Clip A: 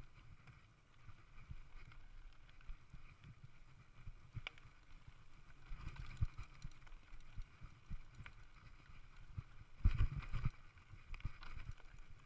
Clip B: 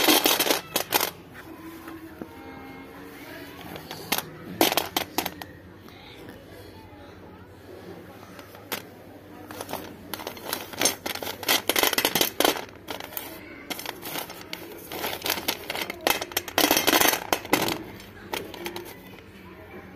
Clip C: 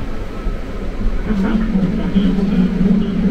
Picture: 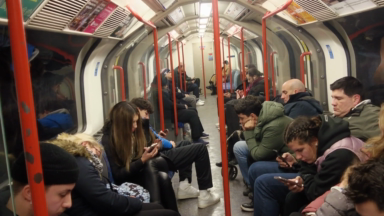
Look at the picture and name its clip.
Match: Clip C